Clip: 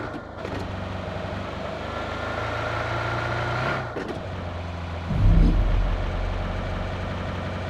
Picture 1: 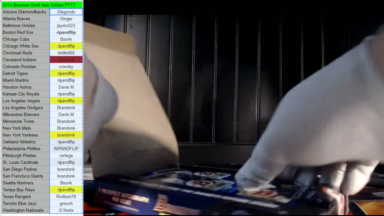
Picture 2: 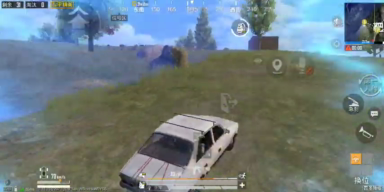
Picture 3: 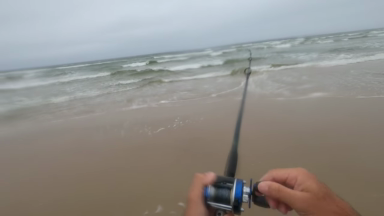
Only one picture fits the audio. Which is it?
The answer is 2